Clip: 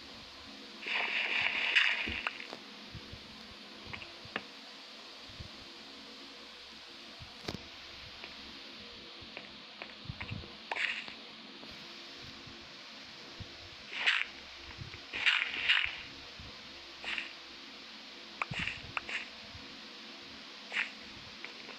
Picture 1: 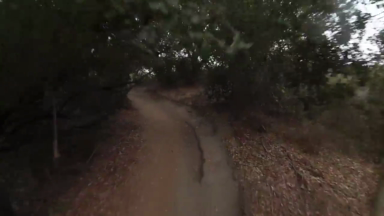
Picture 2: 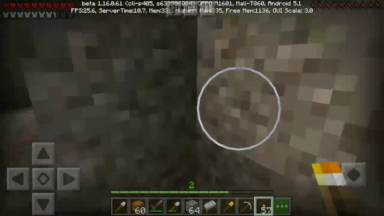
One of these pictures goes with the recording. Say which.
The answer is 2